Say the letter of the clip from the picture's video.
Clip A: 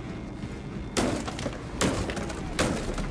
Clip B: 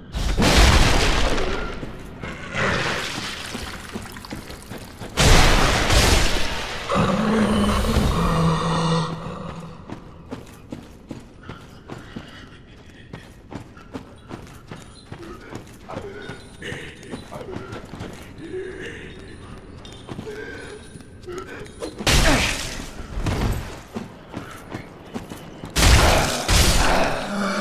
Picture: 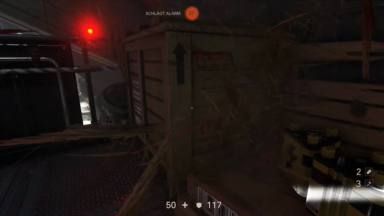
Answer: A